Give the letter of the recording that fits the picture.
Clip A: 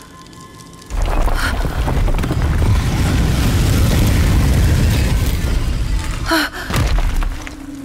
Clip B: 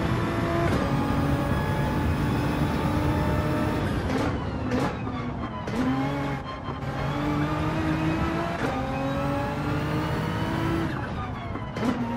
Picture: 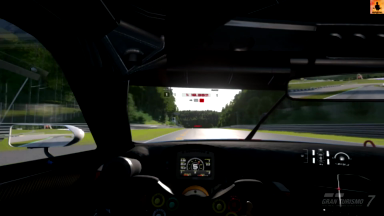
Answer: B